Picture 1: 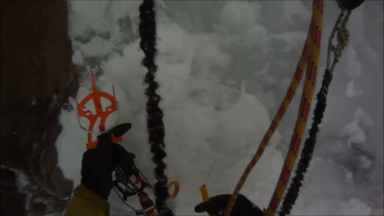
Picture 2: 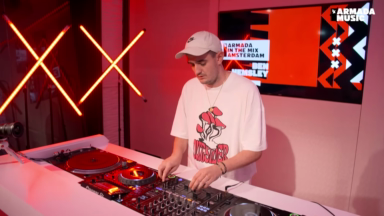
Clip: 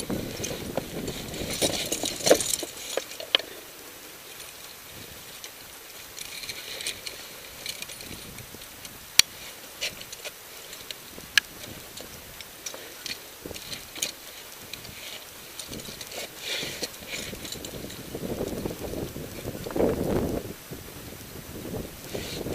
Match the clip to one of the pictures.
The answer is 1